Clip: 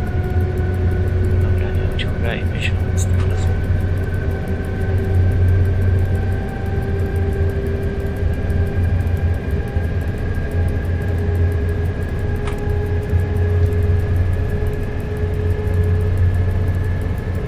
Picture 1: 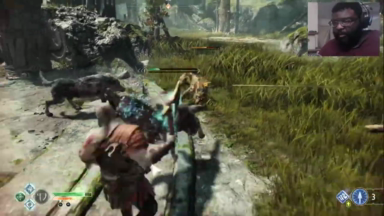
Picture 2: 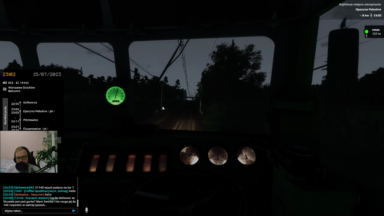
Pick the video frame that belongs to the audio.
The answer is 2